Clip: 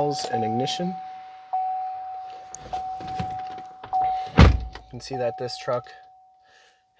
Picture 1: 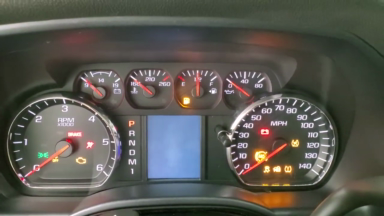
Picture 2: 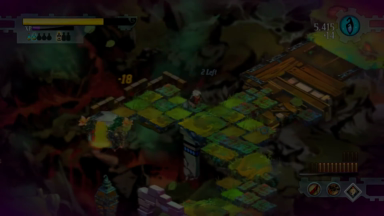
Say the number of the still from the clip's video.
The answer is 1